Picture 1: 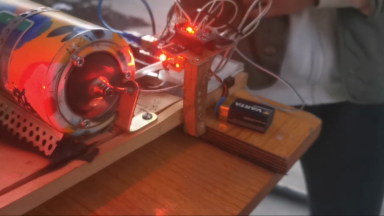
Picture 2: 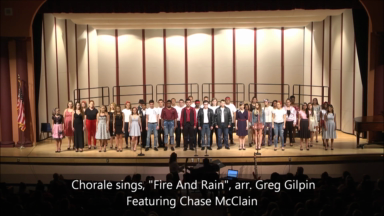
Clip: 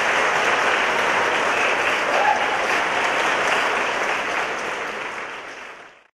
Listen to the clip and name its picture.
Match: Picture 2